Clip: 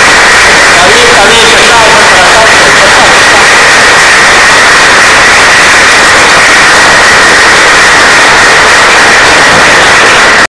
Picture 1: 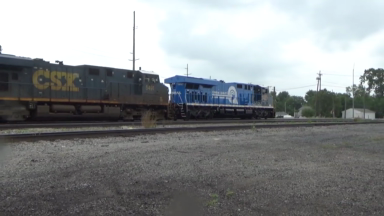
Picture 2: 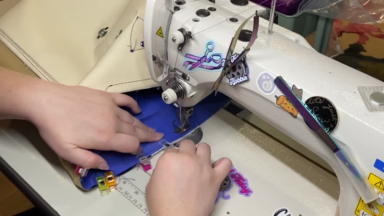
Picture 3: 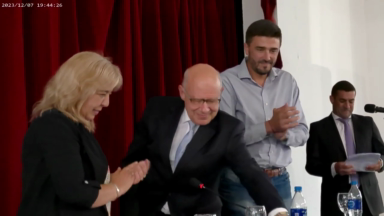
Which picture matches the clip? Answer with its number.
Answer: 3